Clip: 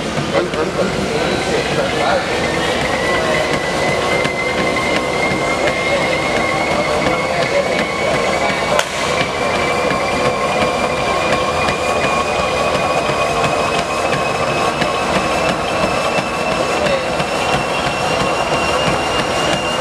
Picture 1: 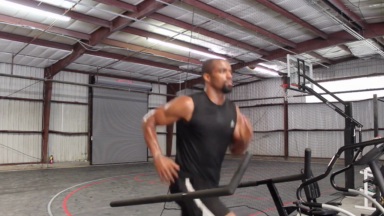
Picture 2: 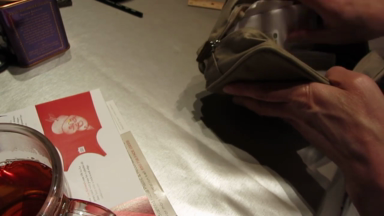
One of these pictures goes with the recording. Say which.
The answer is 1